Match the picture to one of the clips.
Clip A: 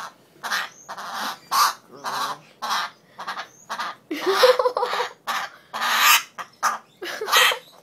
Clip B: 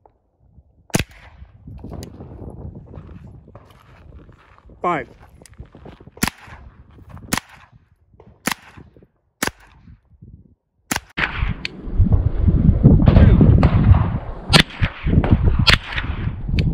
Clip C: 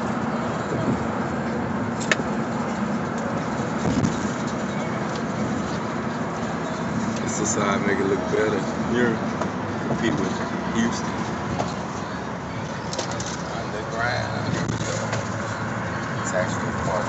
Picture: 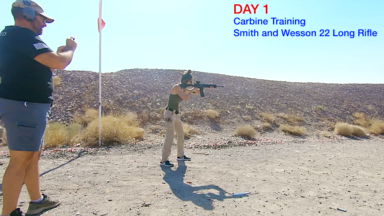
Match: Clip B